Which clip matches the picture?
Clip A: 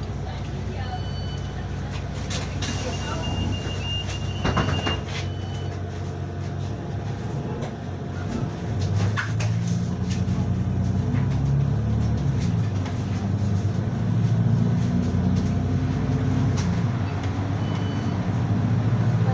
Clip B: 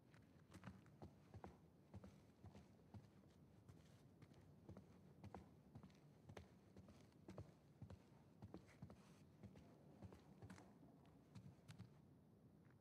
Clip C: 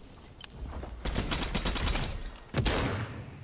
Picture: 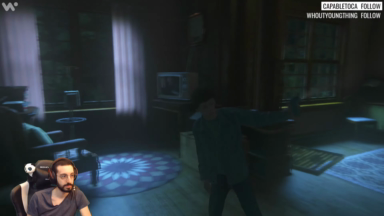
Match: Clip B